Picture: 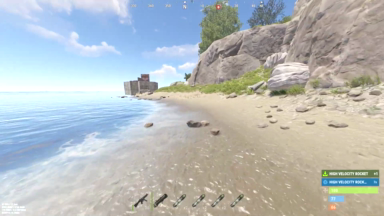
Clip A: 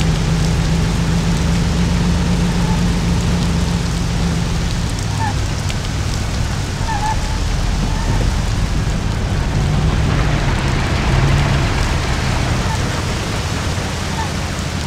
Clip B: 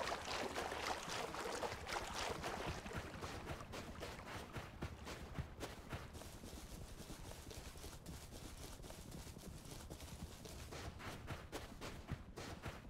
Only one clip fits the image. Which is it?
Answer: B